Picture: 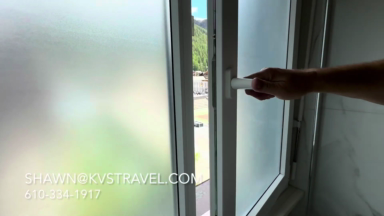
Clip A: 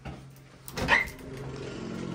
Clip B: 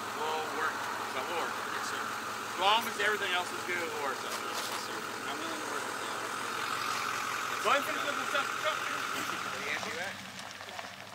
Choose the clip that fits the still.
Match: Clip A